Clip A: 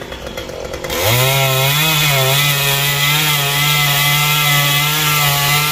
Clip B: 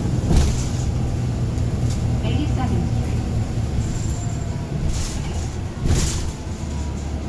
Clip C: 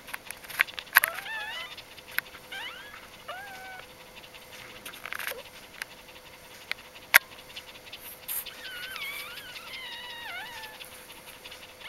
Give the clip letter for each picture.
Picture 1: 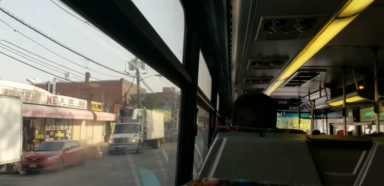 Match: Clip B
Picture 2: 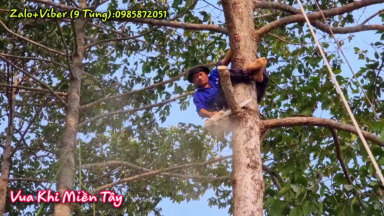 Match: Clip A